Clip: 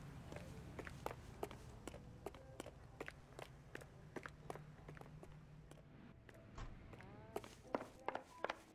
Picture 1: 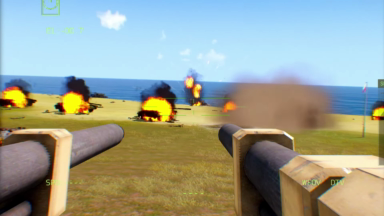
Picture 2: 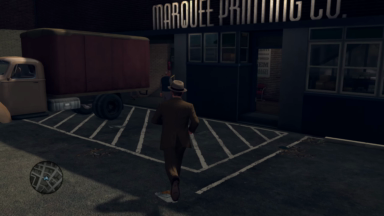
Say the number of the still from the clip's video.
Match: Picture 2